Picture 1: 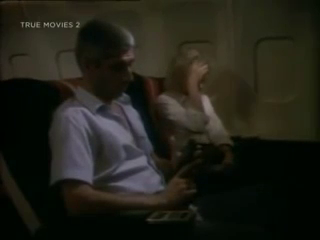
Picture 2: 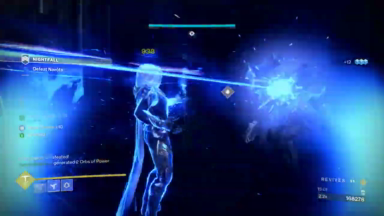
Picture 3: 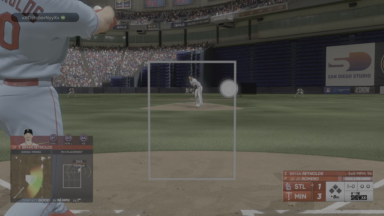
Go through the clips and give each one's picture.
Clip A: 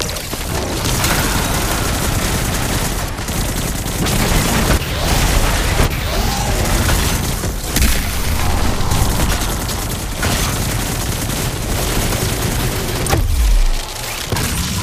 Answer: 2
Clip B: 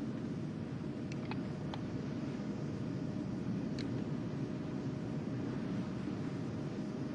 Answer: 1